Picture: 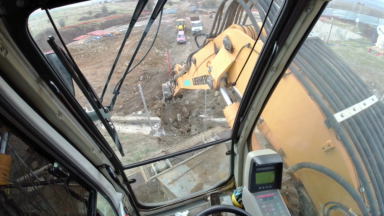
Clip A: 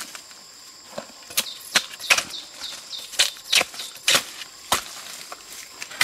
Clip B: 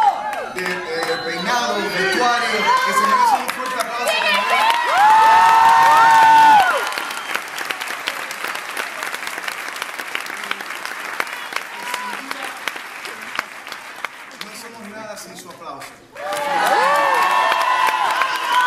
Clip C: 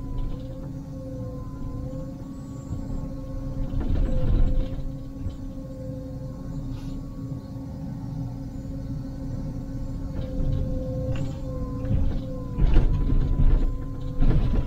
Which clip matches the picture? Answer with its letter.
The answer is C